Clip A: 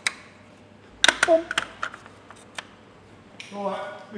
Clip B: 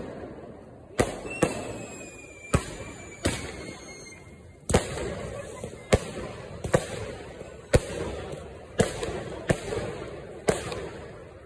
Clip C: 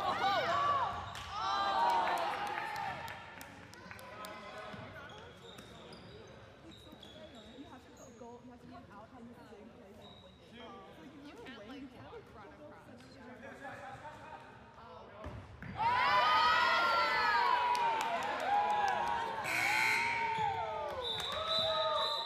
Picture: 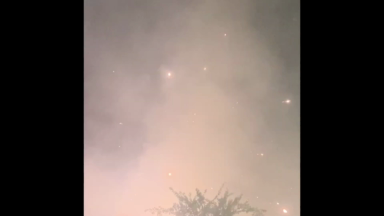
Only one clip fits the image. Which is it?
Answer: B